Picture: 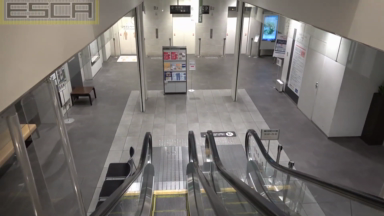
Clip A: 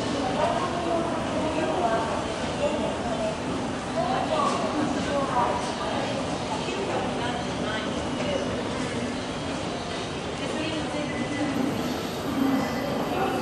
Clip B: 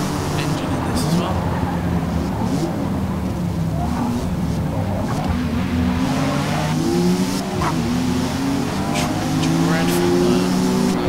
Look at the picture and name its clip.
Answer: A